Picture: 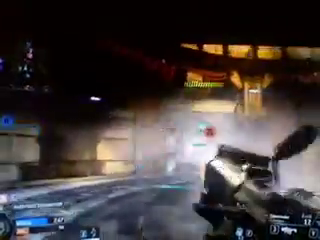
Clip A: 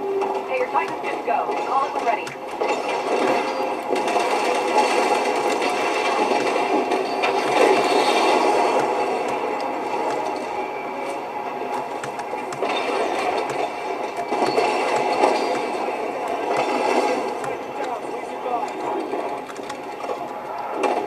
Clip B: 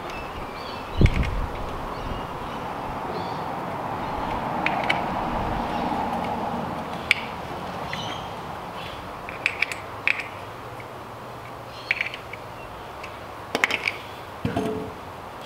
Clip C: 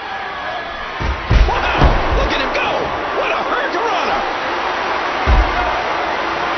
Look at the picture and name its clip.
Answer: A